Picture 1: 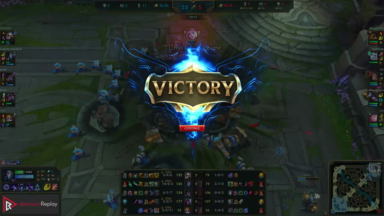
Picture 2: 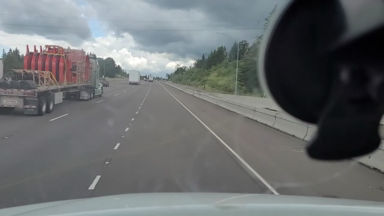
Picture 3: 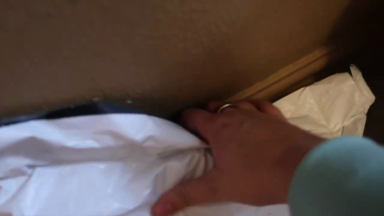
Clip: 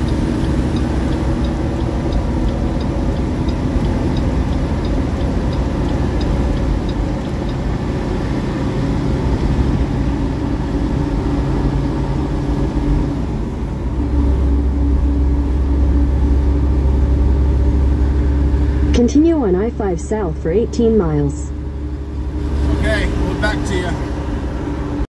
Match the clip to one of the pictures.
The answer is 2